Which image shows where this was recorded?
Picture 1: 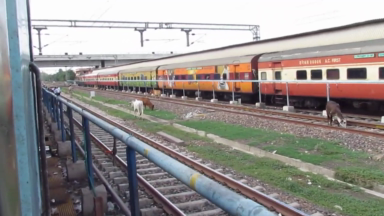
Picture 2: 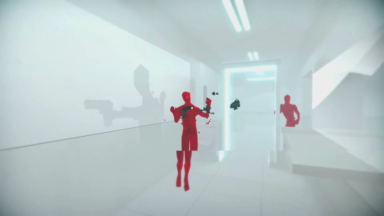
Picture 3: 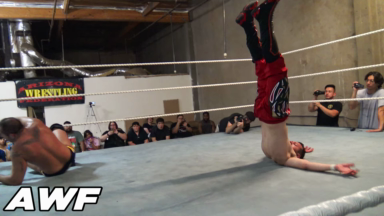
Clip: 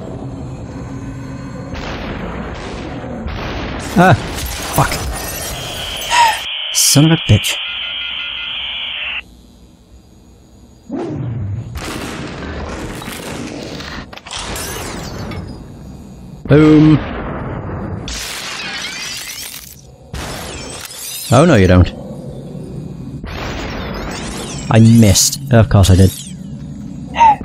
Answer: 2